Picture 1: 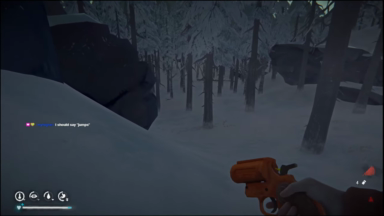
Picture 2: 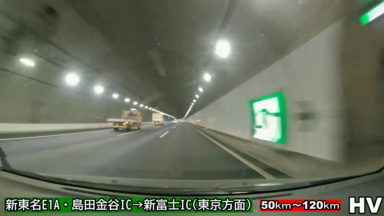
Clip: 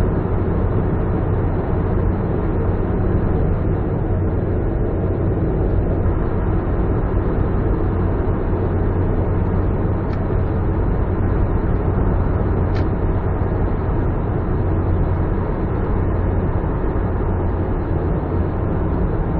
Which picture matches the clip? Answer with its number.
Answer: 2